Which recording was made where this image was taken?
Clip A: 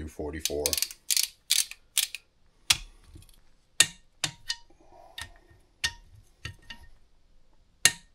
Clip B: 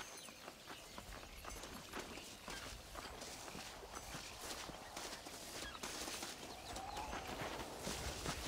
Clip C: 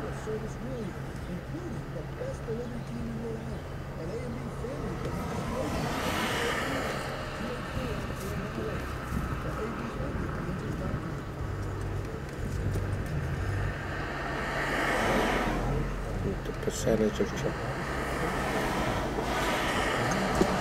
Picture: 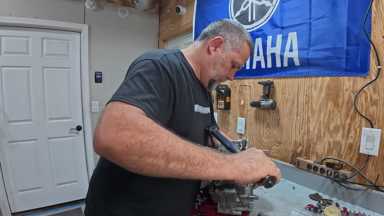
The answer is A